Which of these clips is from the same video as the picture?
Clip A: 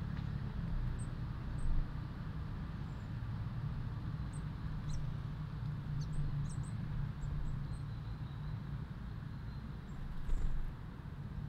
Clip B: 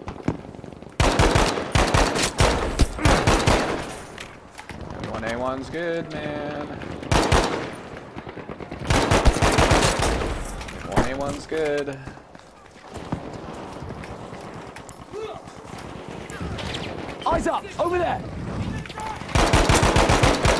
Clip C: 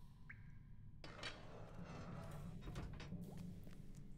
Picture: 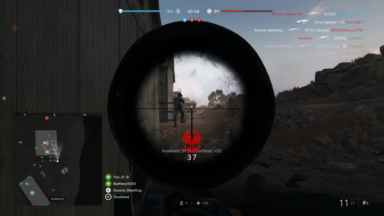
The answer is B